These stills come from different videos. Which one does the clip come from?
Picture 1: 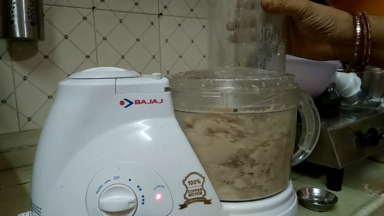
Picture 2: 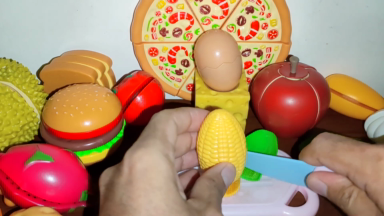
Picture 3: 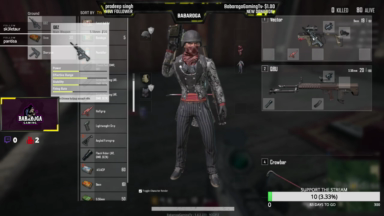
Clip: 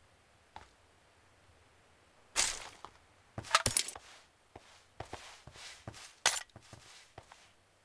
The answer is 3